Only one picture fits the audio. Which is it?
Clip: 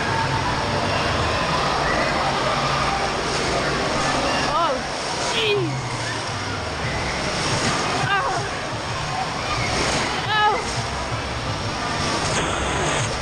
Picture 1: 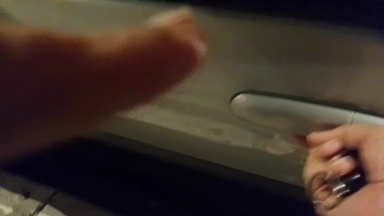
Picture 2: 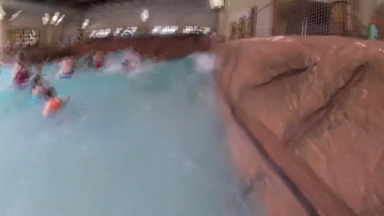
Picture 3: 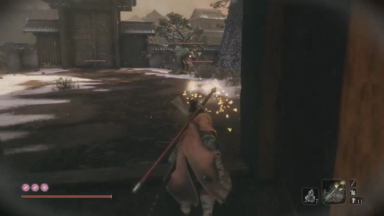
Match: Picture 2